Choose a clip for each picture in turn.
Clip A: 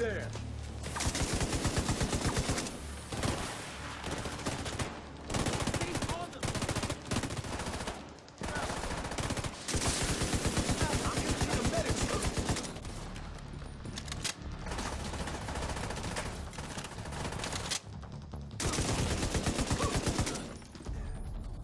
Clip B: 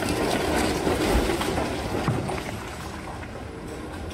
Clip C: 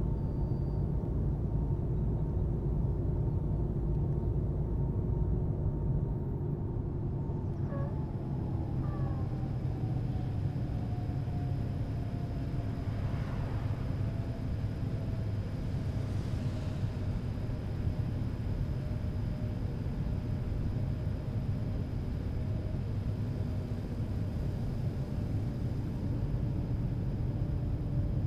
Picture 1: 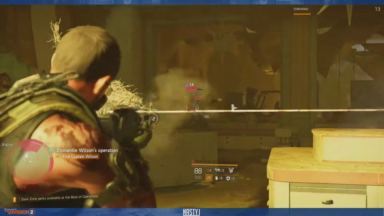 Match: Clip A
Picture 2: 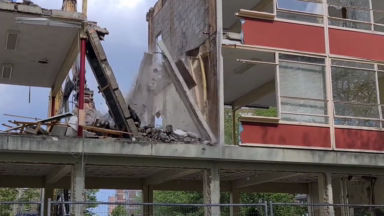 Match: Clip B